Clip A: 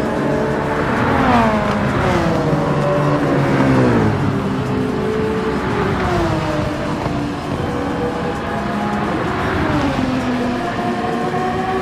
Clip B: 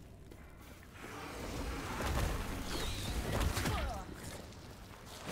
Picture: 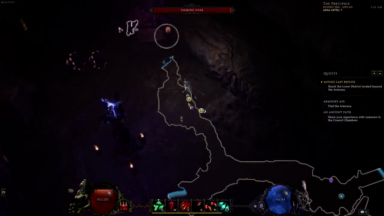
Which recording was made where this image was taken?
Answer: B